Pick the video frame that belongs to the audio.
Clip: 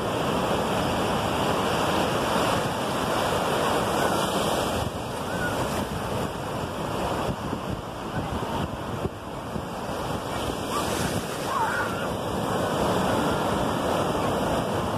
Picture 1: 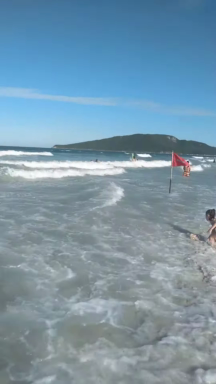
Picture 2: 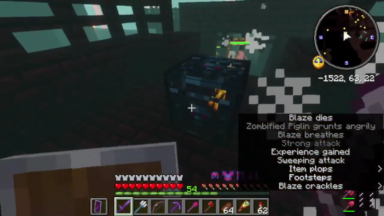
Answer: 1